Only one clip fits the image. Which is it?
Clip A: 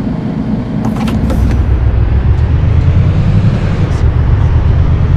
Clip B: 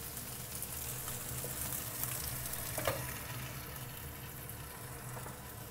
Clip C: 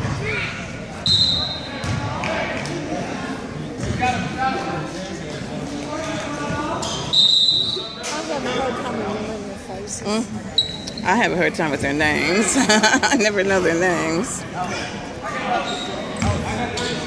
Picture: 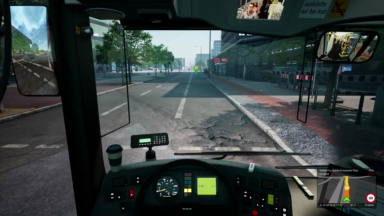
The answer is A